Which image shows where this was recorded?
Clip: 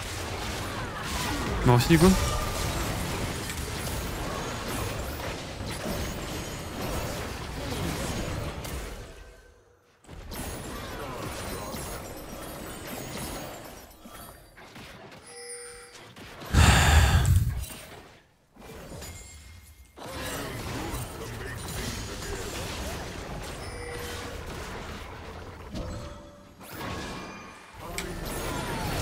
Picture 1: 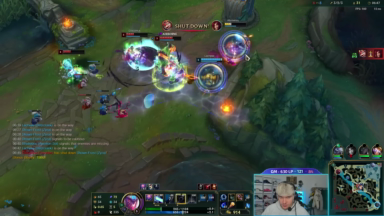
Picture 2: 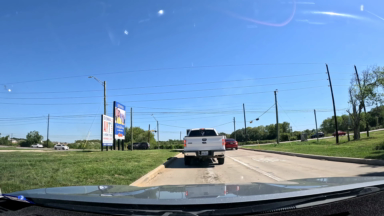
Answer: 1